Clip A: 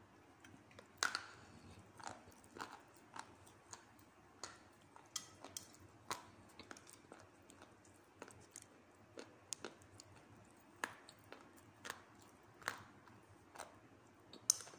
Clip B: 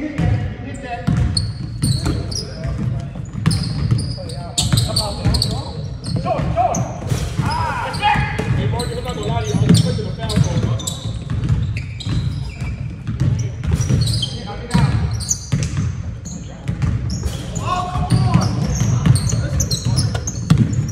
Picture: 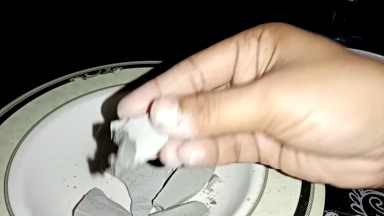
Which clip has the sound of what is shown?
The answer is A